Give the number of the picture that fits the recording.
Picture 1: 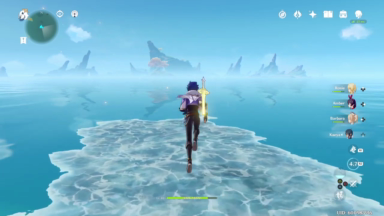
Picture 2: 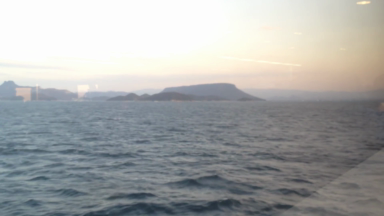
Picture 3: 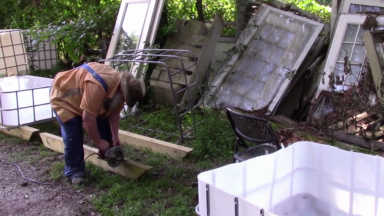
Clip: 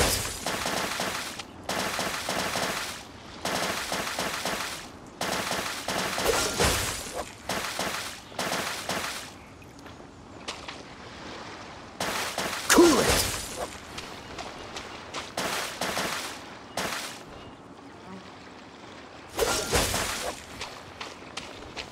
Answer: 1